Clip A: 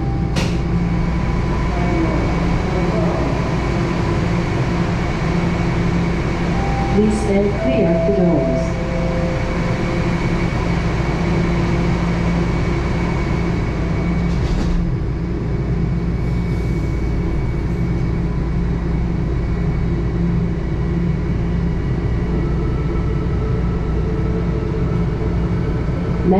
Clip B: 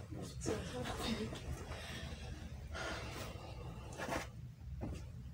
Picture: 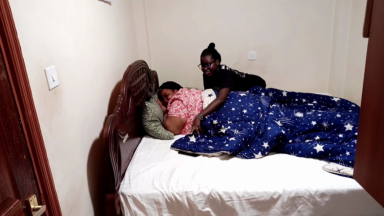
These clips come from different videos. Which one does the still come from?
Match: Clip B